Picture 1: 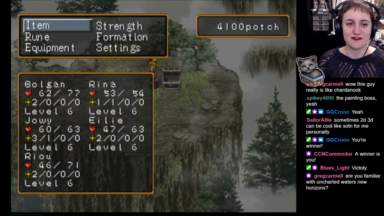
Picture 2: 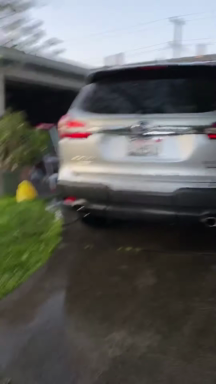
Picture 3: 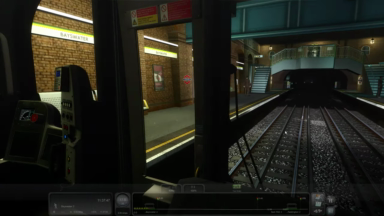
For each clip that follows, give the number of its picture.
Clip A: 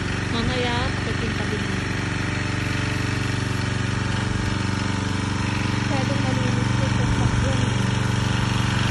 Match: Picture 2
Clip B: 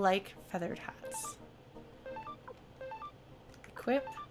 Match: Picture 1